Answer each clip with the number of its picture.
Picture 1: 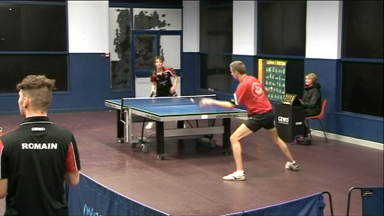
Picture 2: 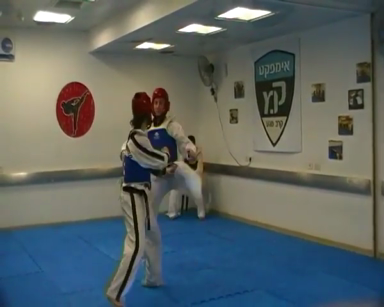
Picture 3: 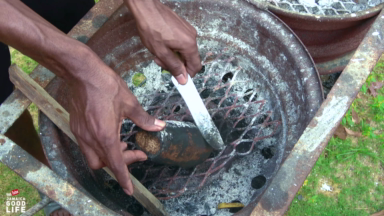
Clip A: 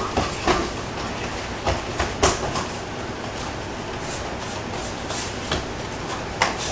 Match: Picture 2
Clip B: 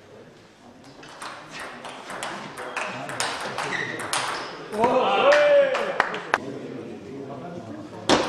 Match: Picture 1